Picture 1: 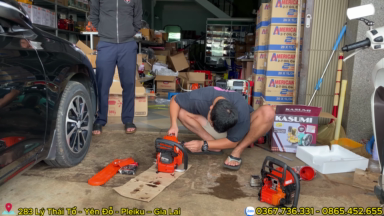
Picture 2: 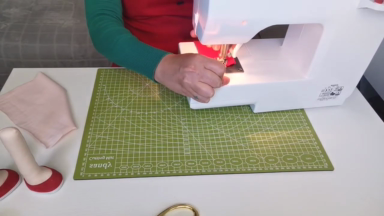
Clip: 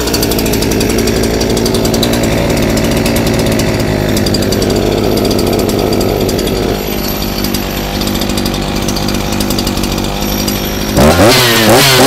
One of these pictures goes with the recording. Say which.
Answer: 1